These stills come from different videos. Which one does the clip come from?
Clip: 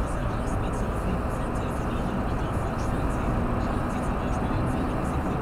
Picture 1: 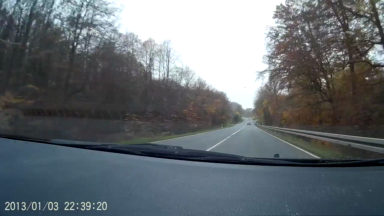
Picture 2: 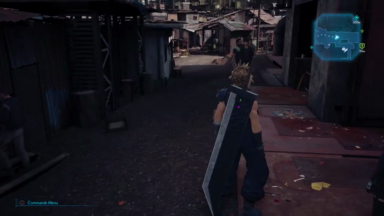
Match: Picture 1